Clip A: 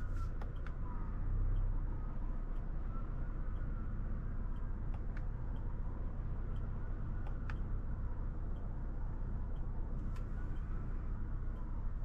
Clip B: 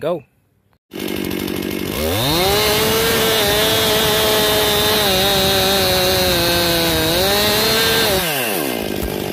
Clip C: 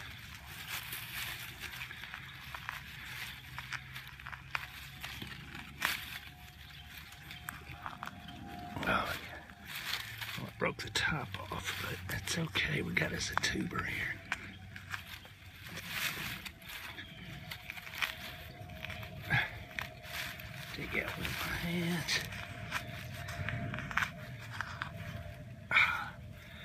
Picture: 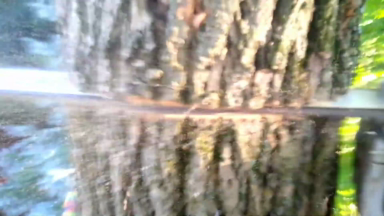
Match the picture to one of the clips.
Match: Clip B